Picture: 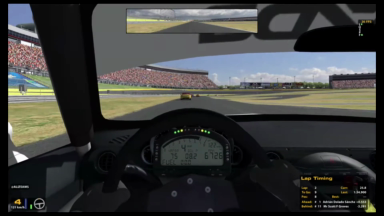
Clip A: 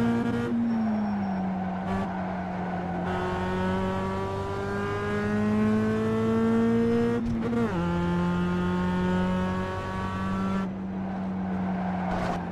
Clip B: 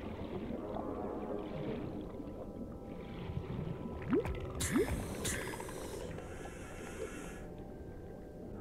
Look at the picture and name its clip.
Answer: A